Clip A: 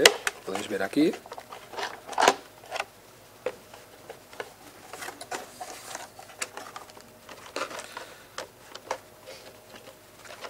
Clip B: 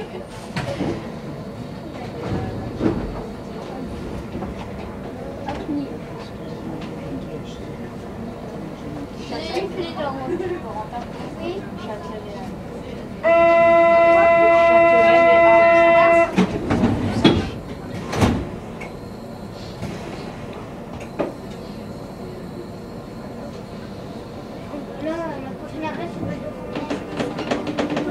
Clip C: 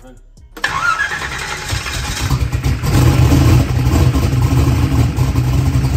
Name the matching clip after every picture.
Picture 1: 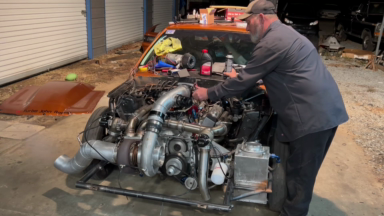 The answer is C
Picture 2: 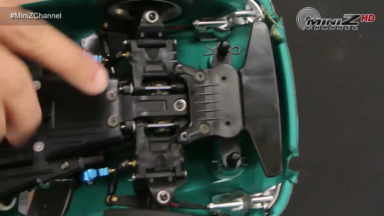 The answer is A